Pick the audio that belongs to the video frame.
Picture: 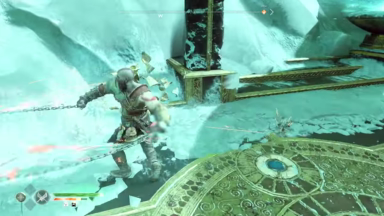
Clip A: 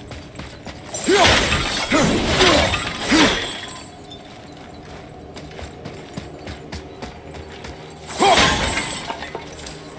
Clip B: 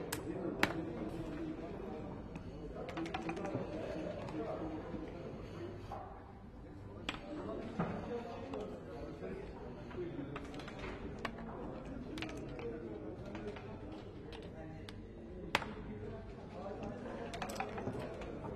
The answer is A